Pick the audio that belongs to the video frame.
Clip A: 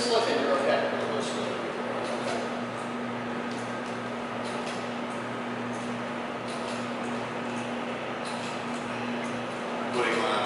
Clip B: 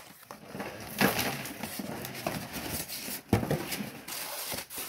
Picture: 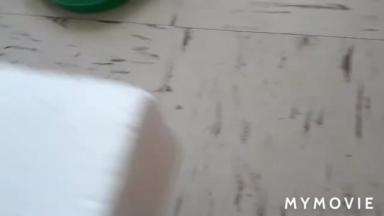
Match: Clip B